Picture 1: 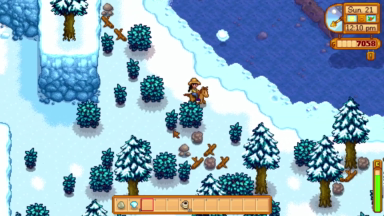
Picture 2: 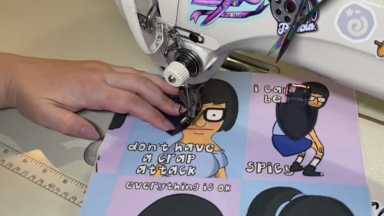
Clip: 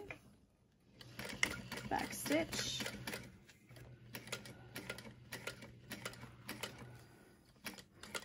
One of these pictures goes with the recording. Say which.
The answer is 2